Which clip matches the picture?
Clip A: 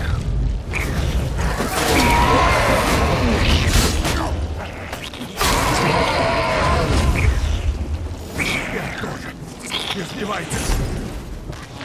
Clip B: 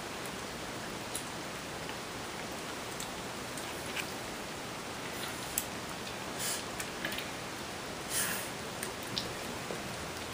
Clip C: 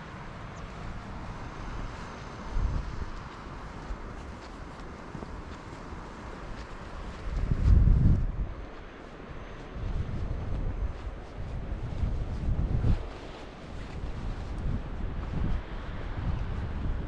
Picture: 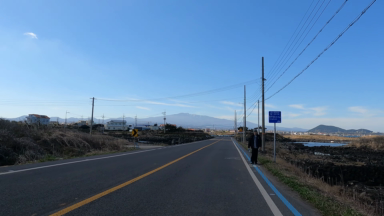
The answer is C